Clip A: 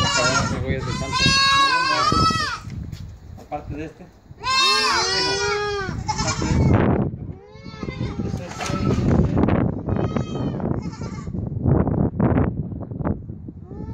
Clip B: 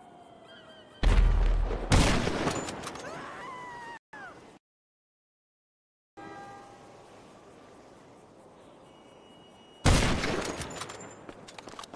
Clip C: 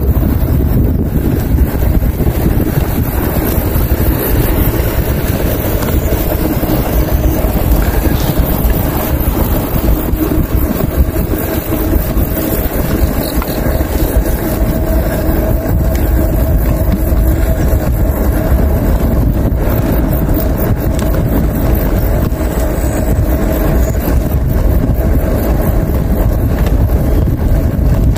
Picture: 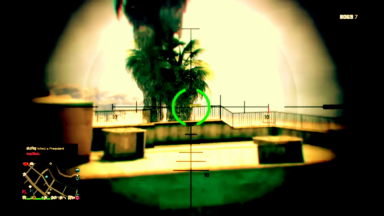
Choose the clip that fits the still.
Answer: B